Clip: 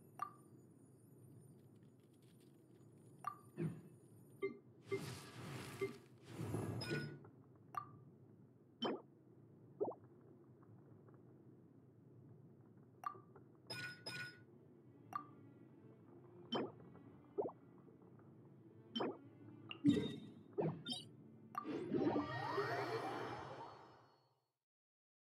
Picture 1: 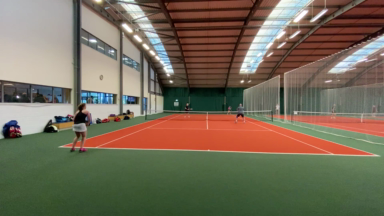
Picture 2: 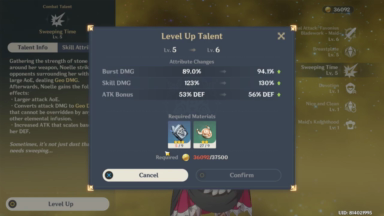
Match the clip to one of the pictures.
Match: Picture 2